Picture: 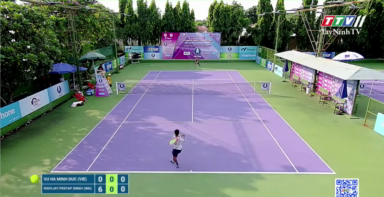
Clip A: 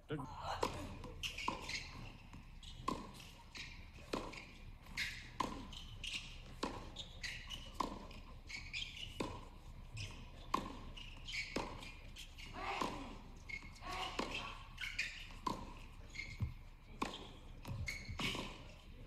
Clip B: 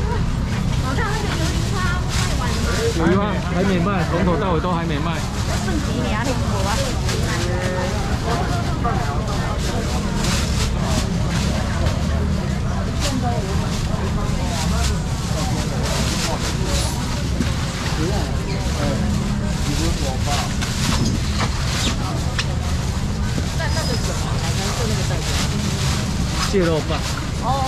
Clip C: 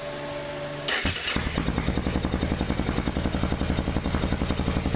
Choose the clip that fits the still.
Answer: A